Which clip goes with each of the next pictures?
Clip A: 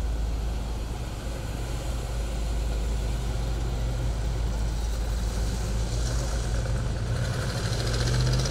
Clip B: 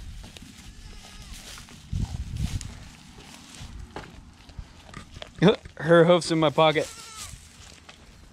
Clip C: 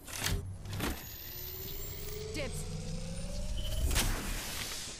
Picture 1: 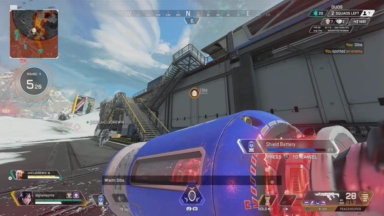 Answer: C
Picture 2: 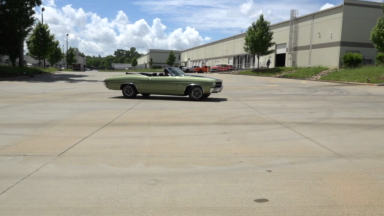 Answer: A